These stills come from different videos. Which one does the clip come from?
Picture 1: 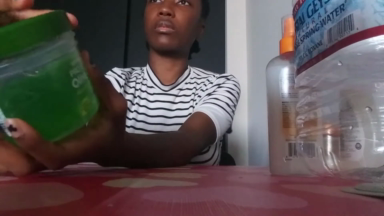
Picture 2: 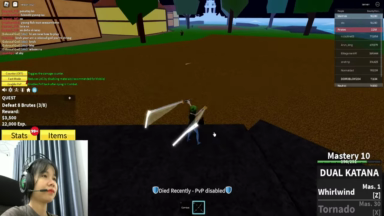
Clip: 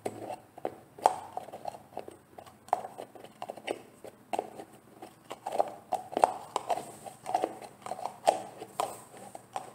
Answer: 1